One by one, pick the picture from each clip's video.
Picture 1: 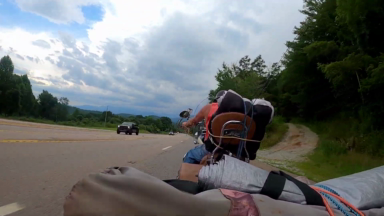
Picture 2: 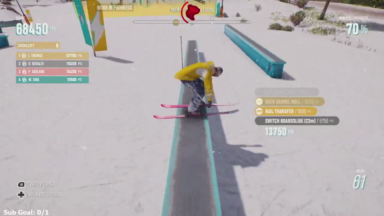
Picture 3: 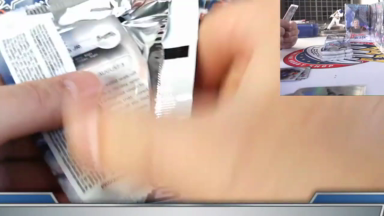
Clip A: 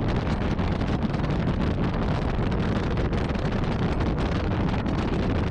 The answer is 1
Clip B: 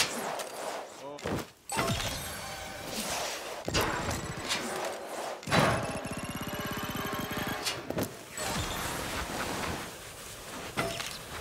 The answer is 2